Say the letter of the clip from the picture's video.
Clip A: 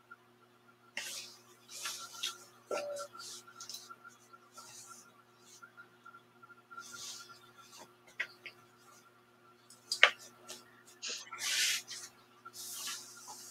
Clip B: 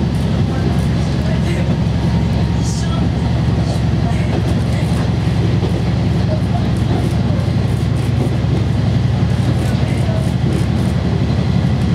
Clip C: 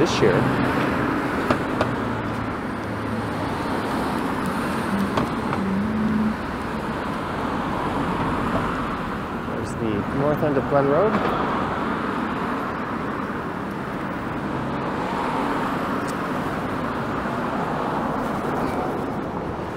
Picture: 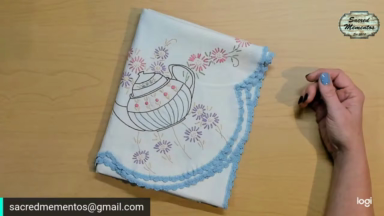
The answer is A